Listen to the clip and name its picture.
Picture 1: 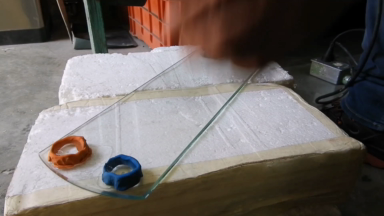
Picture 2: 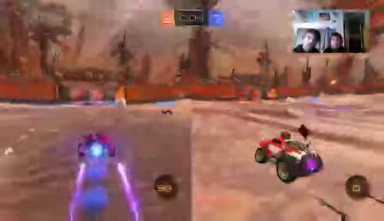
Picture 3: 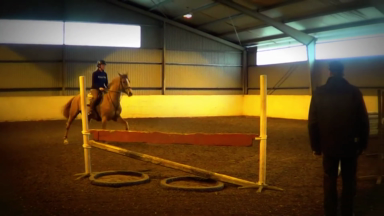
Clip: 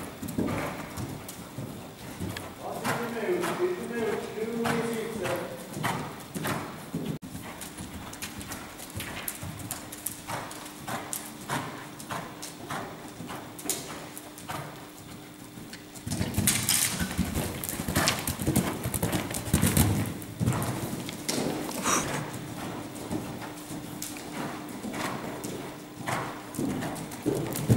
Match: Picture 3